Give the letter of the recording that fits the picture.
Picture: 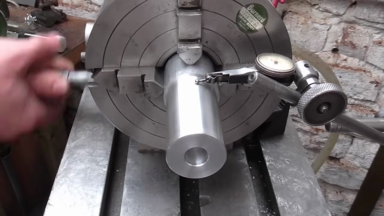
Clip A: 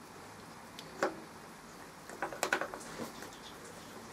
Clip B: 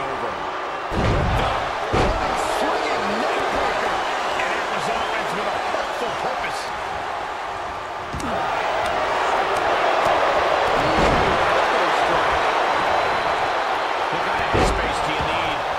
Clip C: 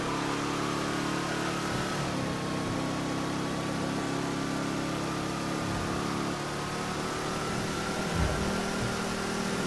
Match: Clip A